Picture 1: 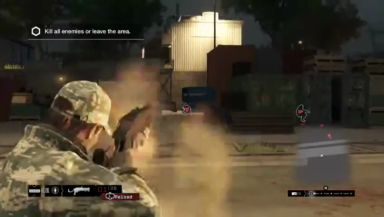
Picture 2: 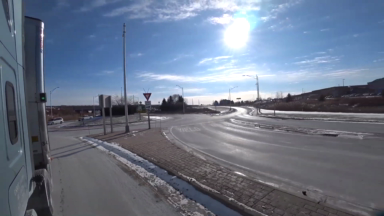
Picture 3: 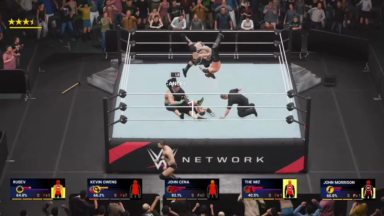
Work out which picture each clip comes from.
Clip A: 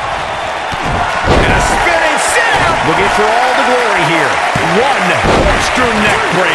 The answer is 3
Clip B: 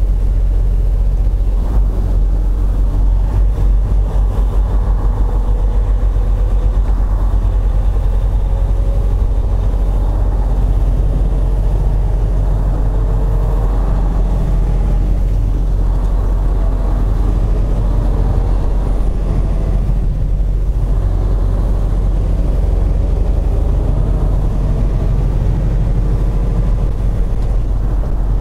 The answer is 2